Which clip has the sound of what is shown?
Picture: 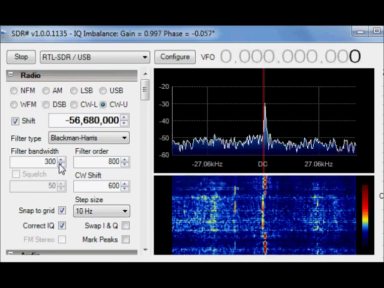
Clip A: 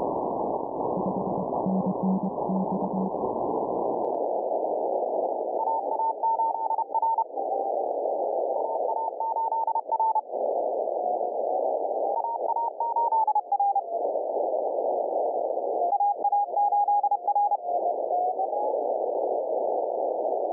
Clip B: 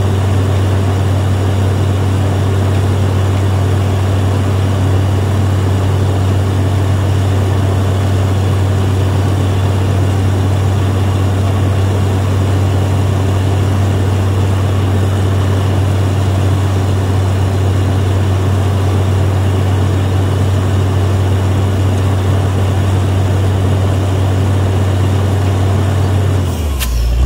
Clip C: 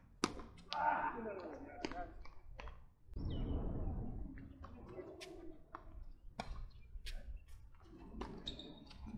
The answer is A